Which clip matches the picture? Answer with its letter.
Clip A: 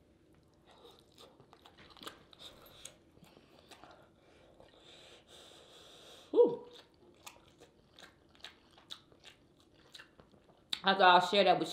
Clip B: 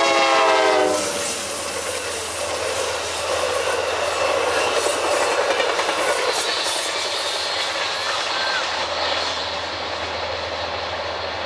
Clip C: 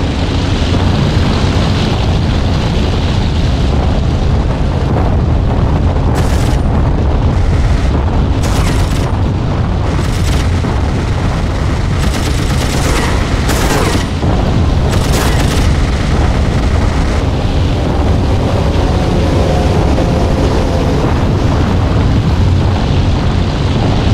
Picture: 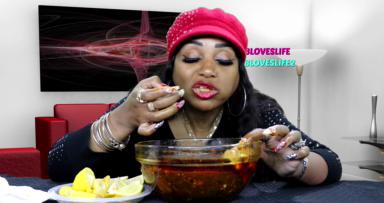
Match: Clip A